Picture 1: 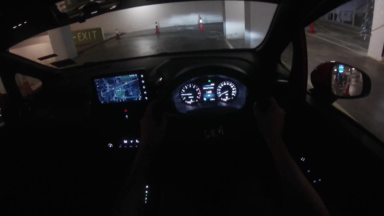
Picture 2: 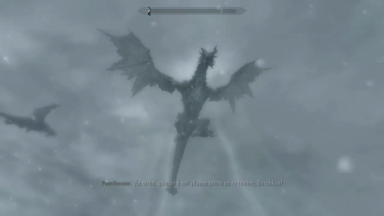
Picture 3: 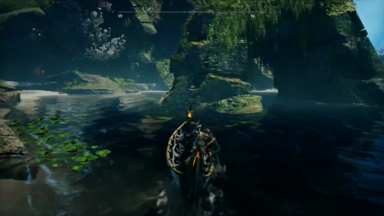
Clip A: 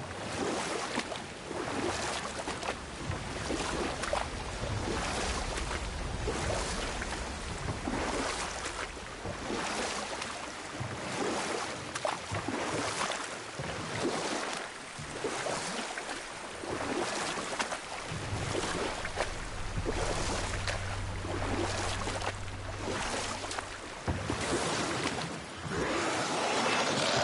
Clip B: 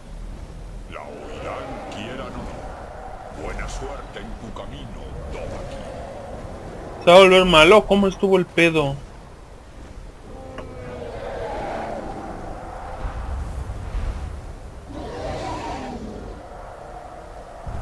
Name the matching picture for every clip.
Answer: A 3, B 2